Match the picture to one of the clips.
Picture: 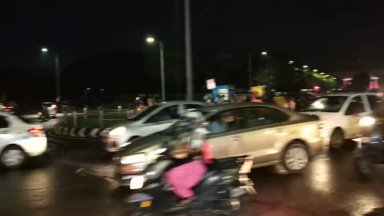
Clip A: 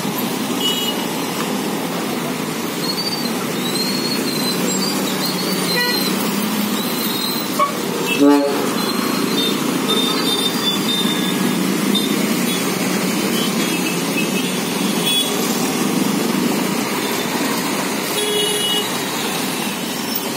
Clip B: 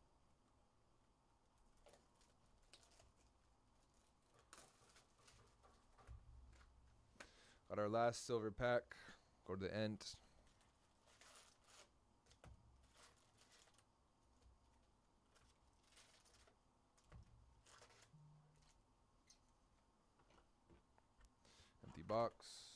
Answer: A